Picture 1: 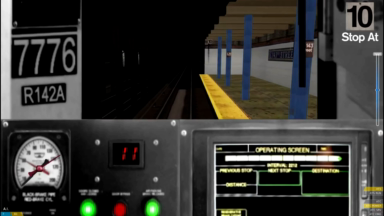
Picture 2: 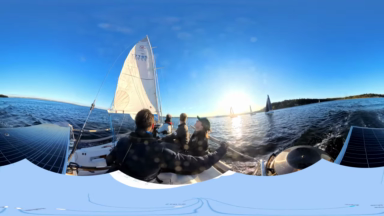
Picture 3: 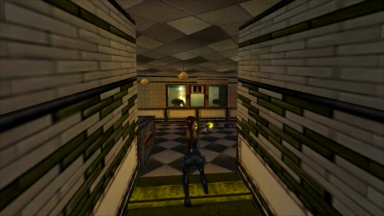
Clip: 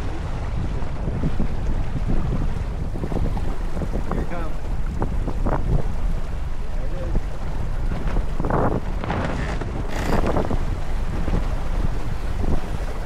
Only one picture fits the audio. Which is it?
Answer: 2